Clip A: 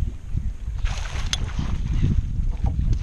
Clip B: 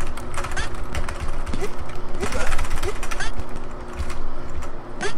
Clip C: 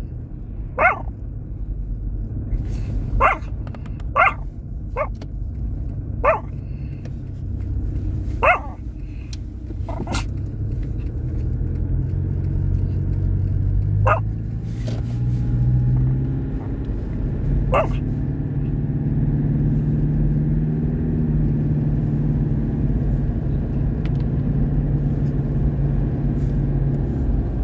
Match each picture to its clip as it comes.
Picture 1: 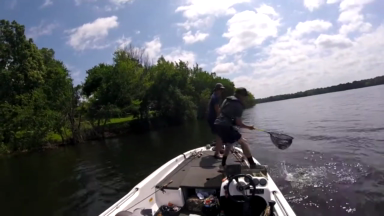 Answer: A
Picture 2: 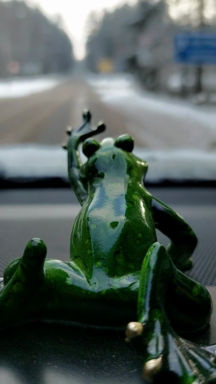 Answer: C